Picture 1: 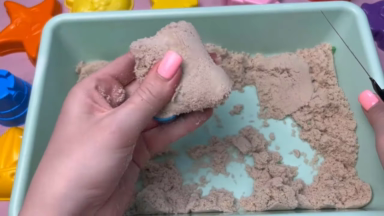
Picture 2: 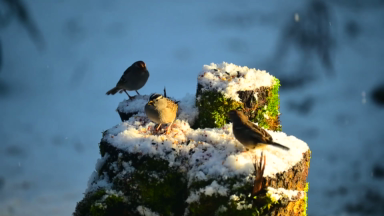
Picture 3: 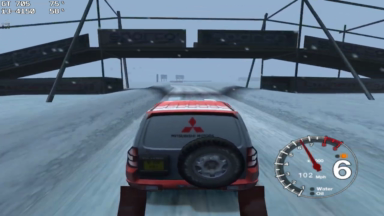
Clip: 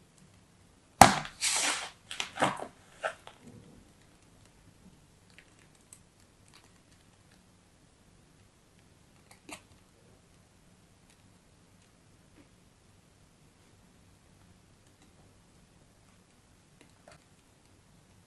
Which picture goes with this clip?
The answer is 1